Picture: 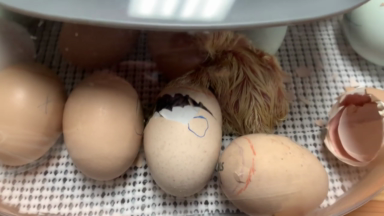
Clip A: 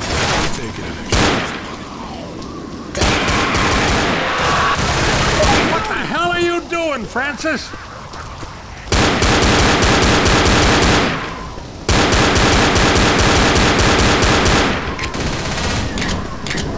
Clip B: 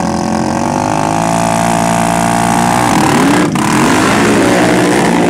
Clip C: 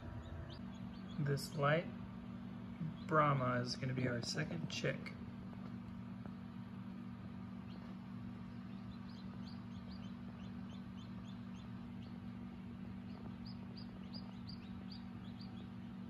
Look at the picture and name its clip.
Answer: C